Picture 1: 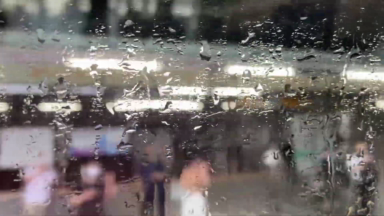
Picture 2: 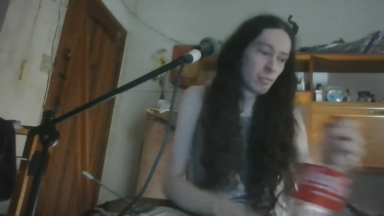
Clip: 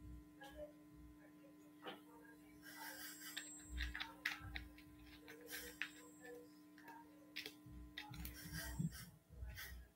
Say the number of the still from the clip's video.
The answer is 2